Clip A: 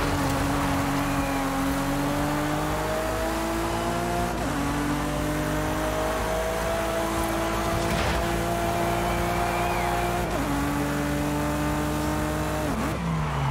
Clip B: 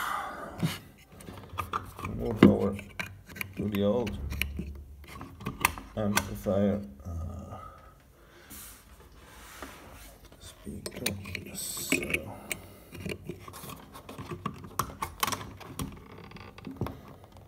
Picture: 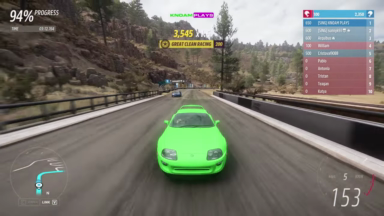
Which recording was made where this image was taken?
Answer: A